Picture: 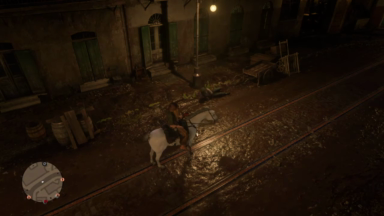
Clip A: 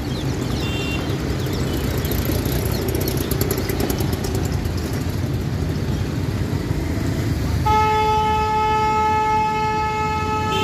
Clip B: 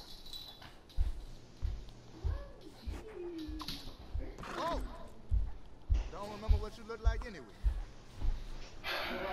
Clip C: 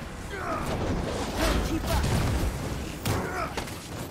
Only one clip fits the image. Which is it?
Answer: B